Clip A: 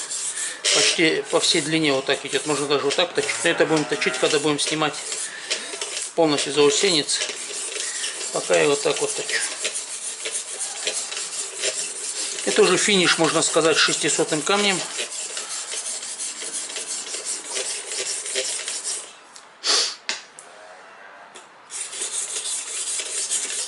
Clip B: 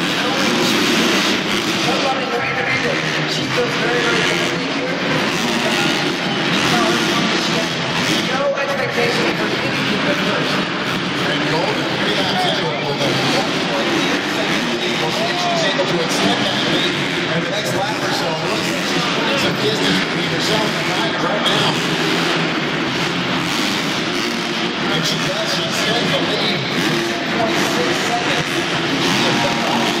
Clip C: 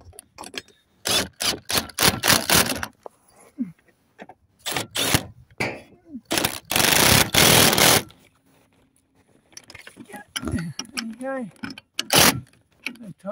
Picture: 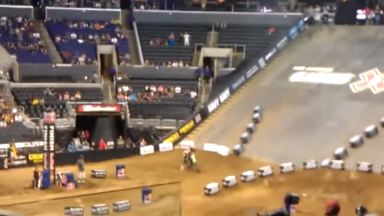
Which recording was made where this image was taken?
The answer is B